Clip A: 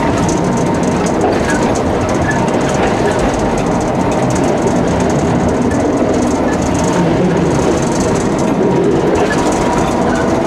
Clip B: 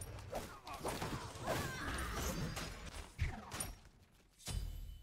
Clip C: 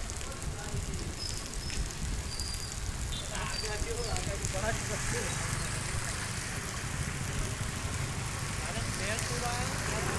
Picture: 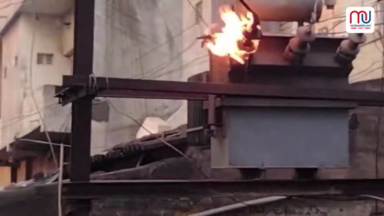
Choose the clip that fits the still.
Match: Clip C